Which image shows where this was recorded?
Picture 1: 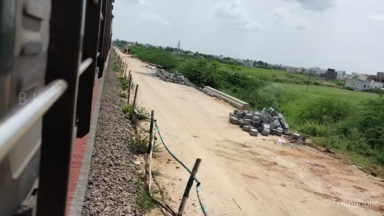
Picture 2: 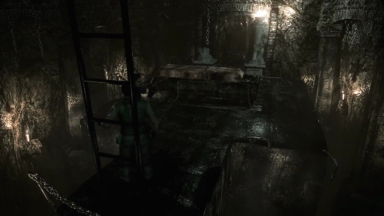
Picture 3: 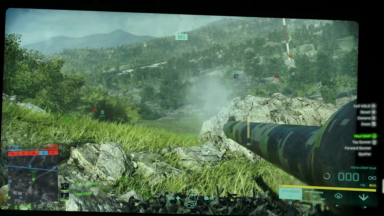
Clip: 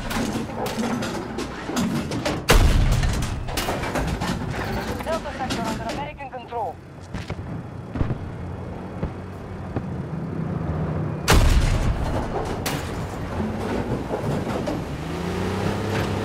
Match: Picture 3